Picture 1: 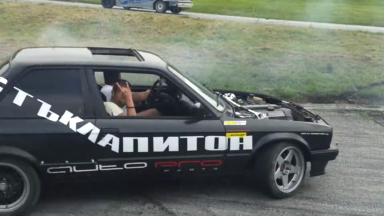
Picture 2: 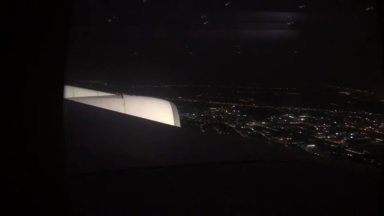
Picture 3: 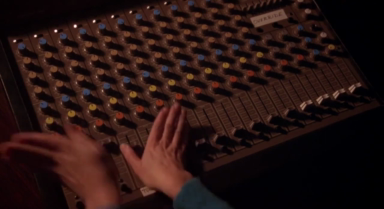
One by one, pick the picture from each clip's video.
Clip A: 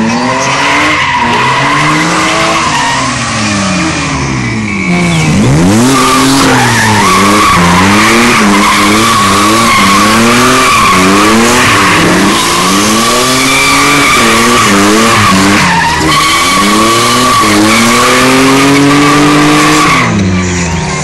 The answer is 1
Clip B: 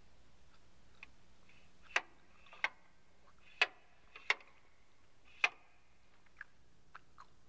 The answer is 3